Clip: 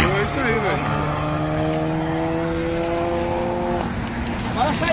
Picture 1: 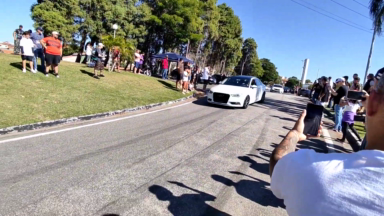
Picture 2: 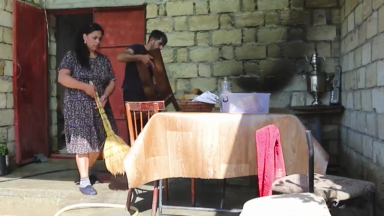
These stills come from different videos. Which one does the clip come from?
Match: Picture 1